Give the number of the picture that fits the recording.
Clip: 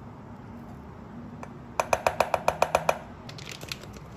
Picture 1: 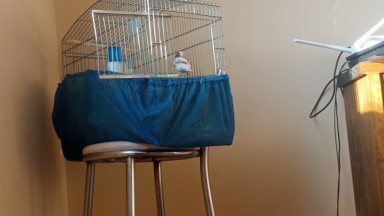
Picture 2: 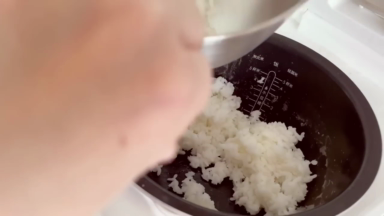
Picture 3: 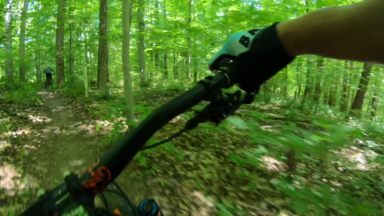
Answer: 2